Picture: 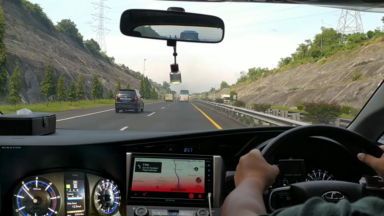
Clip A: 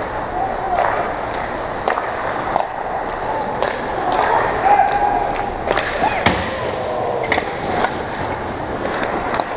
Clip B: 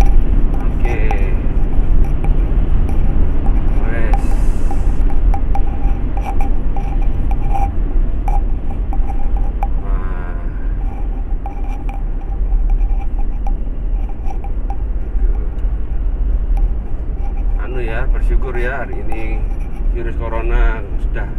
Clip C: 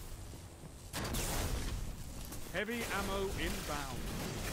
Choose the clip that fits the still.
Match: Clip B